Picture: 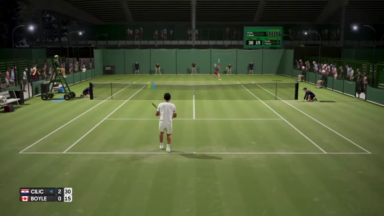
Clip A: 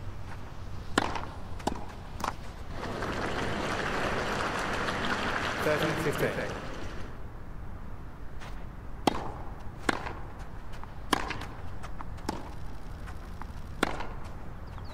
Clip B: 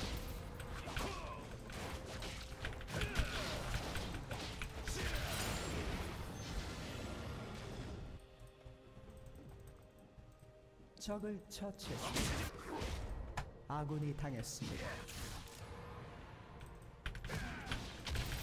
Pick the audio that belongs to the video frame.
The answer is A